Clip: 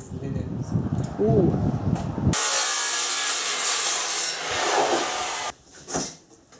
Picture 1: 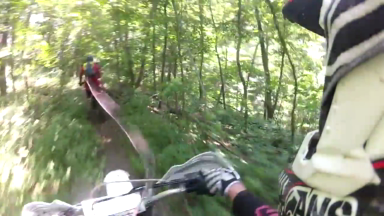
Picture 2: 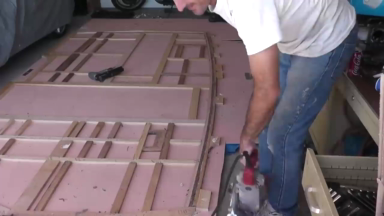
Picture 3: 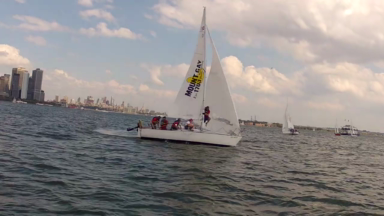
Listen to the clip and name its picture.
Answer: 2